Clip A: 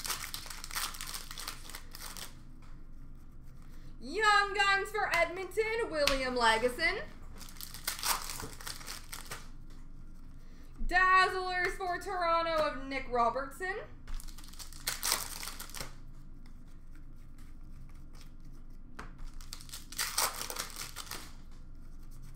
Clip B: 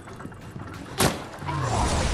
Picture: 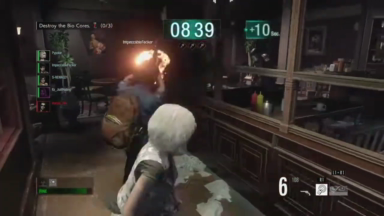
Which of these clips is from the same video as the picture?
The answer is B